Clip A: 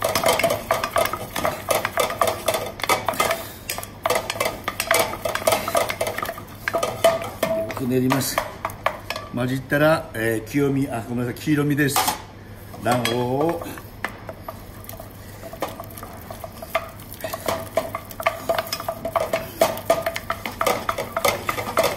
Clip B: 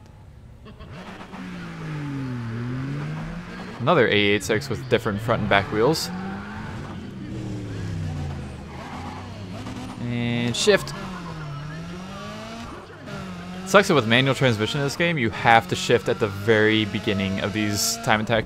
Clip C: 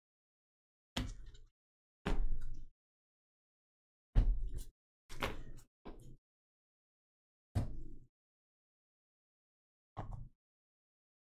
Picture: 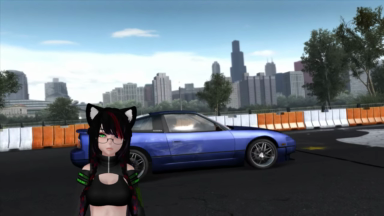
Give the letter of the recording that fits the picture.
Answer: B